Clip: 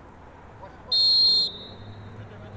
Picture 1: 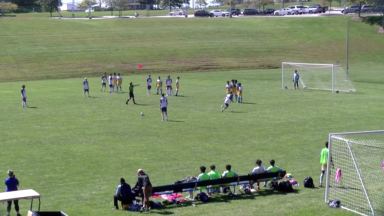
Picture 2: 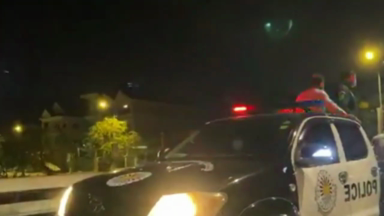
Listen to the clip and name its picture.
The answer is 1